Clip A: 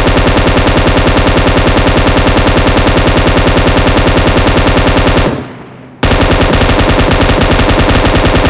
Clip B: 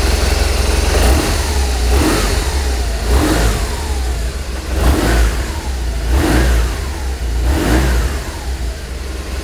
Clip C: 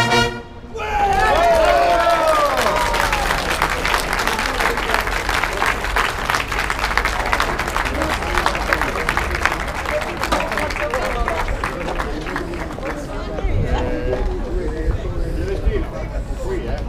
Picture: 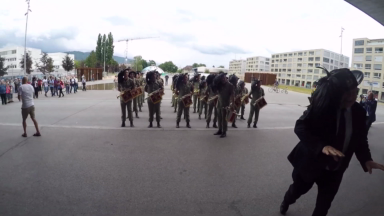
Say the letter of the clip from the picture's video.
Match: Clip C